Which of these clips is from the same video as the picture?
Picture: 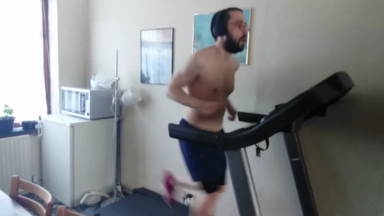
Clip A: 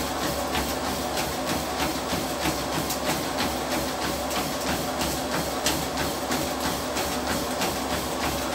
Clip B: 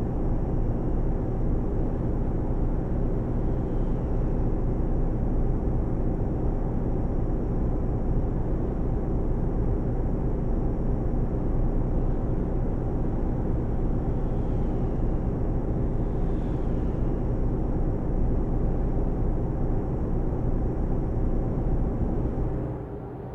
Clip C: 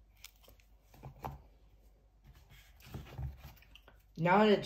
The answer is A